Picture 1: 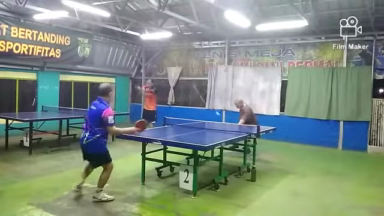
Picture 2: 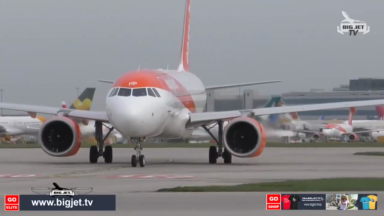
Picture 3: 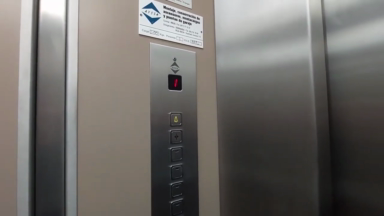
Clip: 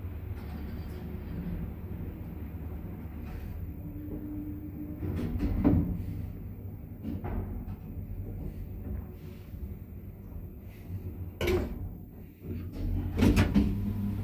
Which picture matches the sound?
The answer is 3